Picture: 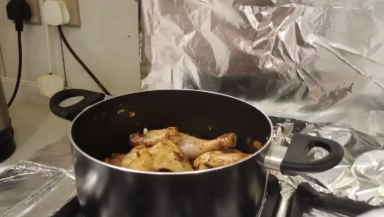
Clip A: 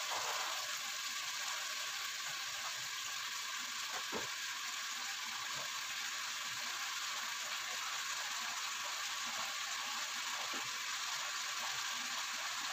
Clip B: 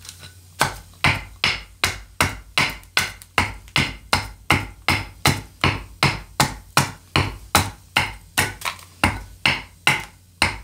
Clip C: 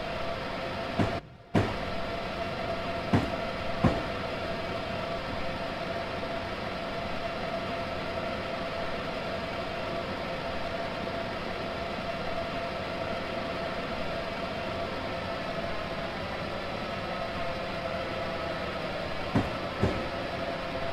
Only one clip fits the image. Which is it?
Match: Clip A